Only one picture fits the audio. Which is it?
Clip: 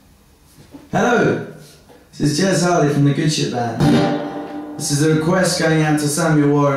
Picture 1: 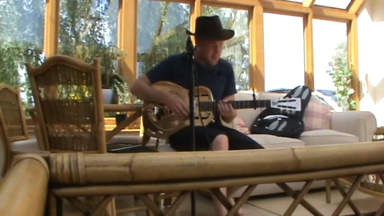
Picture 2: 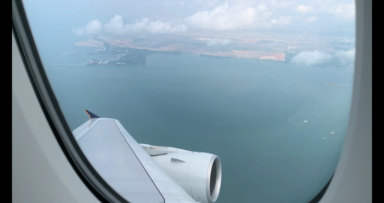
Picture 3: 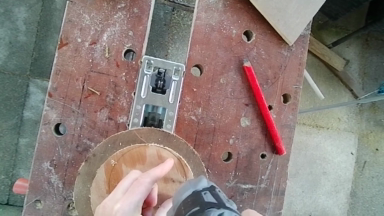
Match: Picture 1